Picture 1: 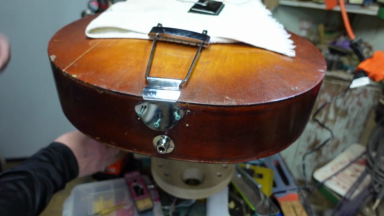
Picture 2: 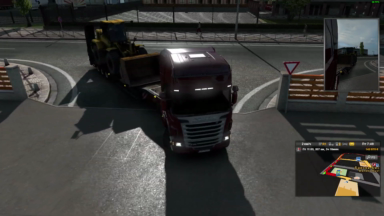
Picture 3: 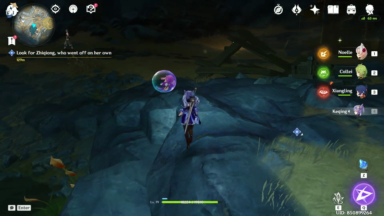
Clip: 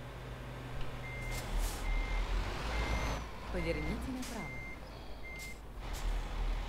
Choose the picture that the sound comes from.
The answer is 2